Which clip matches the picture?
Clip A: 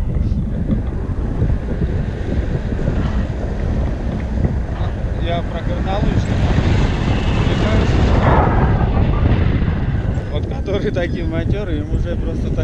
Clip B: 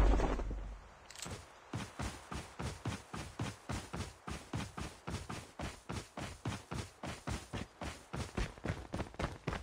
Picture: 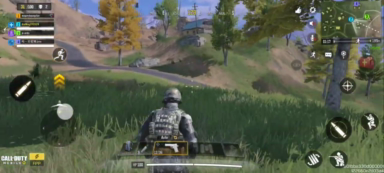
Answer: B